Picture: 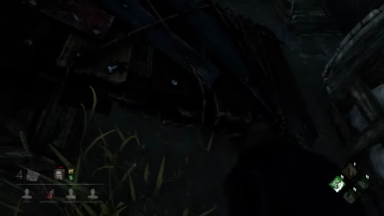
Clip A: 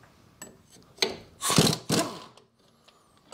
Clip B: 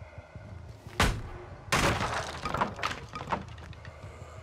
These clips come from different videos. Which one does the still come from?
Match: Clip B